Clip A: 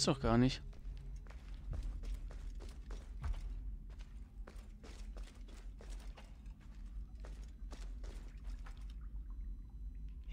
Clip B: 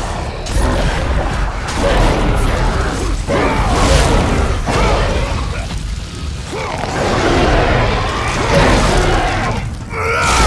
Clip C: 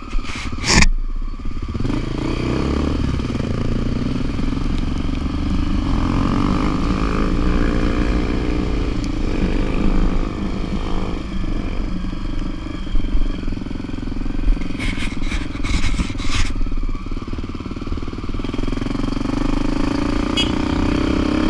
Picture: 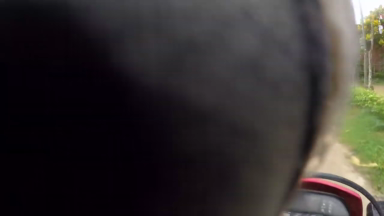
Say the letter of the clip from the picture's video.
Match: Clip C